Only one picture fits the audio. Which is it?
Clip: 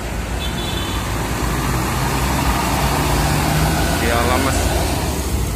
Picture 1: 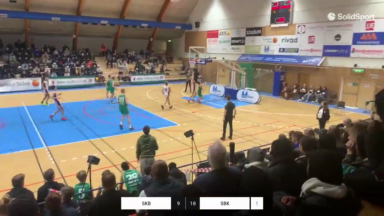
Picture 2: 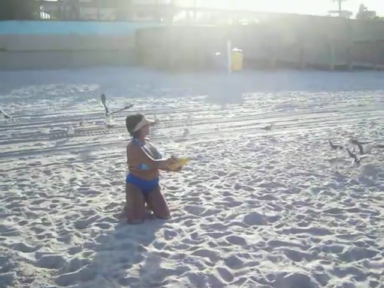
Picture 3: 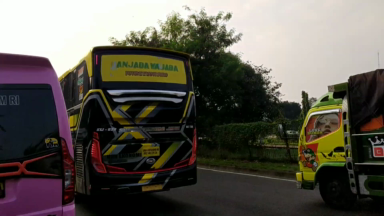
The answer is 3